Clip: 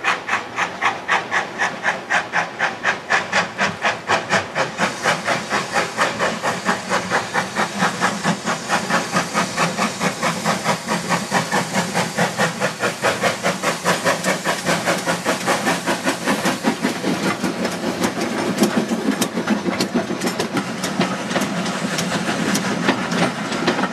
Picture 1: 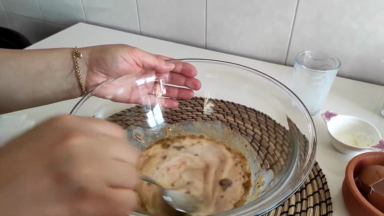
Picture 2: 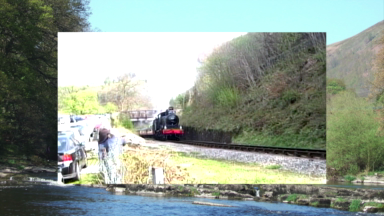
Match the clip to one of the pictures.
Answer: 2